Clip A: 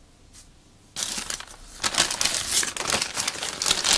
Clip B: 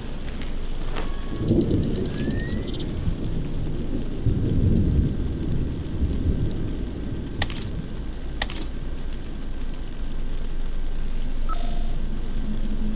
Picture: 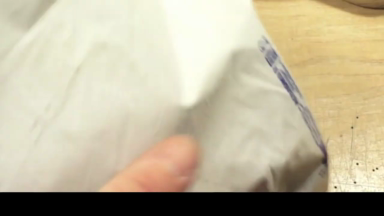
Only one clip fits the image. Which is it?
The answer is A